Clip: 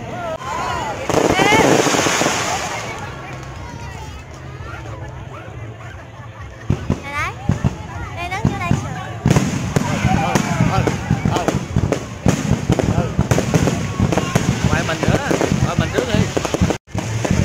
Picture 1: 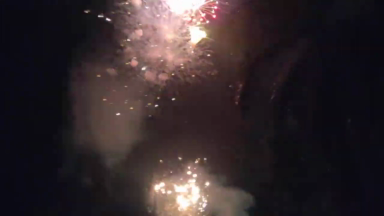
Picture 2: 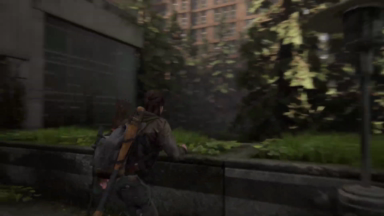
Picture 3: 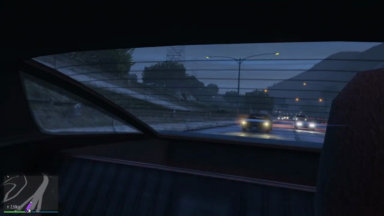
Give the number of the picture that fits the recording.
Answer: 1